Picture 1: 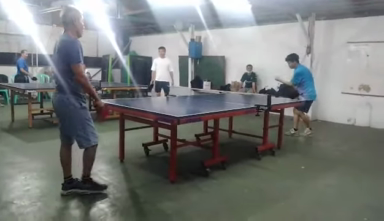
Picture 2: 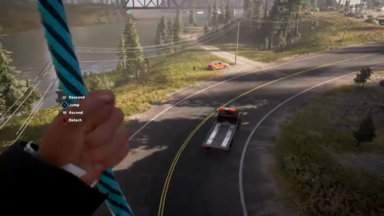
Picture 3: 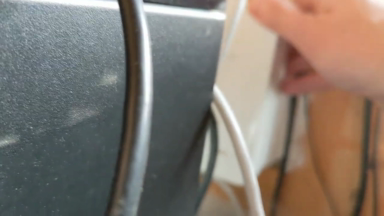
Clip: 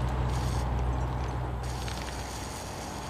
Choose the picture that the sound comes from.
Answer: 2